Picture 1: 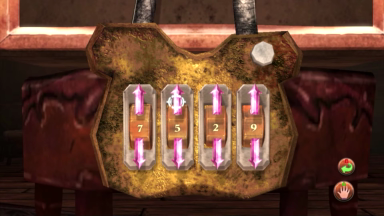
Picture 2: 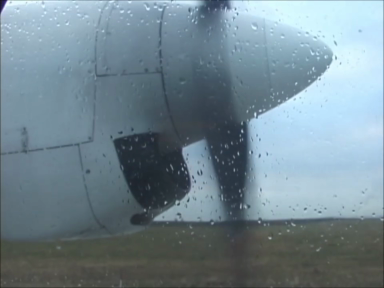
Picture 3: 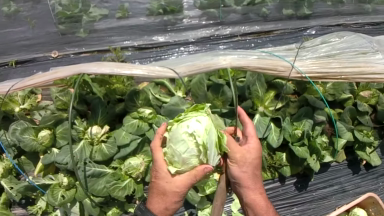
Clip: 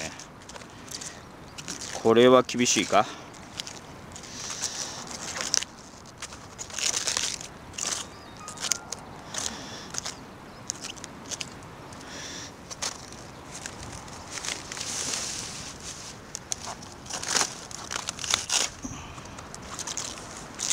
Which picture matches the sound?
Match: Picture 3